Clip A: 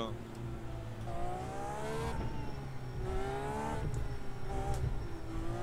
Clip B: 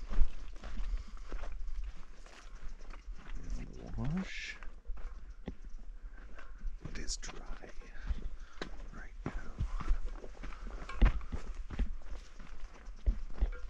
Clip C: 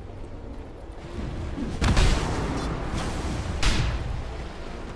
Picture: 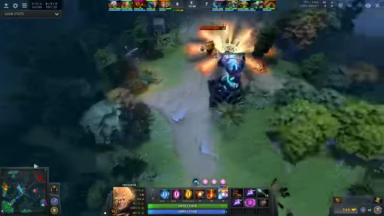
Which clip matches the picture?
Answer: C